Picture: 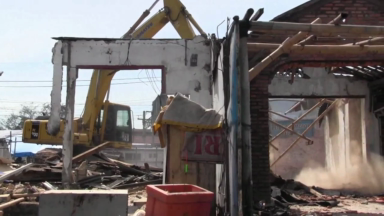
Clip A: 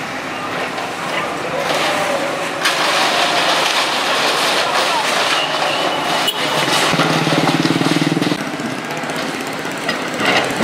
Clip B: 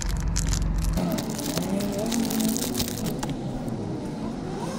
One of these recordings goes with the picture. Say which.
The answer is A